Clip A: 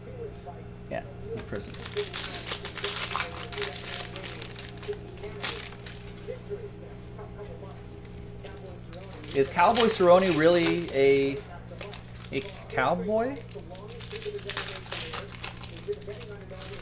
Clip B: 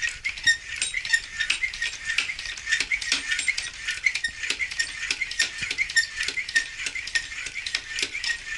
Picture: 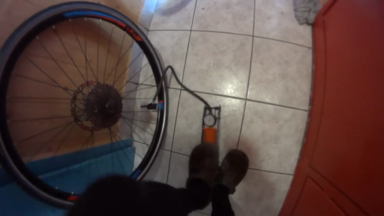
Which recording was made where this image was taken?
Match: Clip B